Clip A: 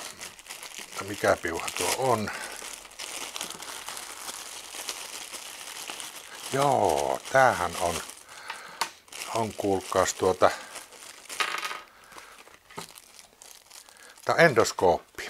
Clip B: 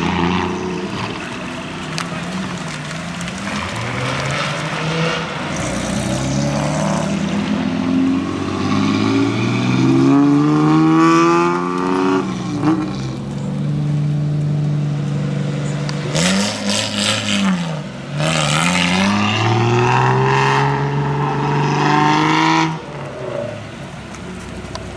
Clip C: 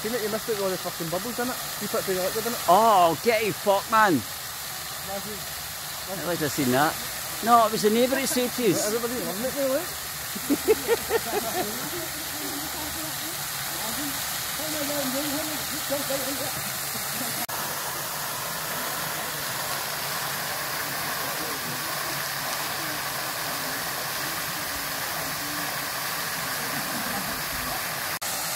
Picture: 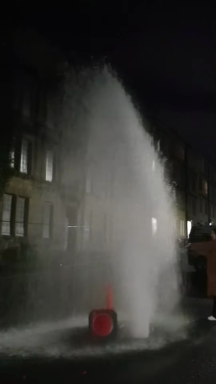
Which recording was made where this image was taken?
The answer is C